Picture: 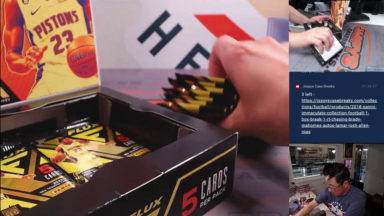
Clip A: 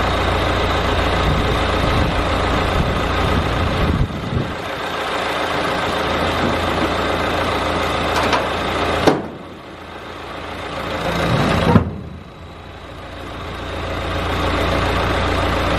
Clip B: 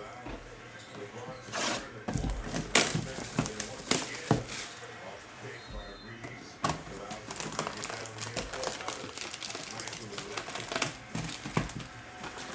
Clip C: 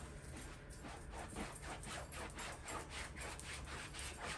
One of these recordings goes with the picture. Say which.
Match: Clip B